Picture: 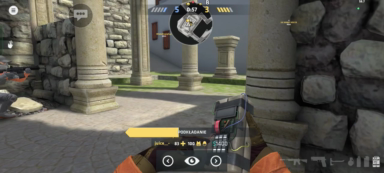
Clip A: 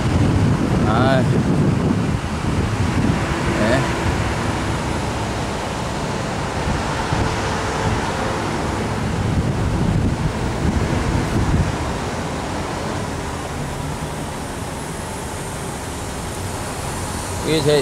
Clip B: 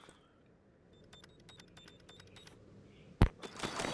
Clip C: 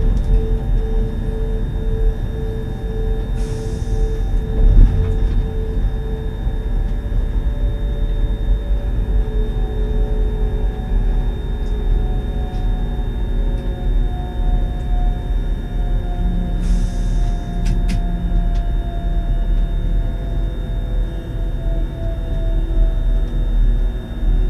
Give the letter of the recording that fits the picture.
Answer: B